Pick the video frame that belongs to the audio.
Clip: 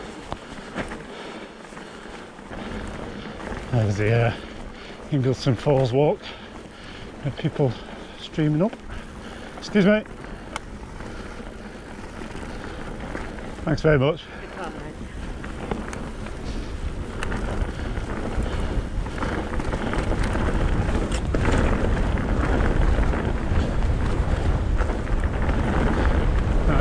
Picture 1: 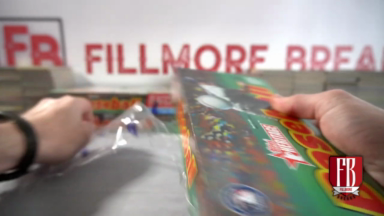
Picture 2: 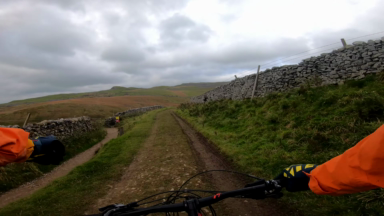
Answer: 2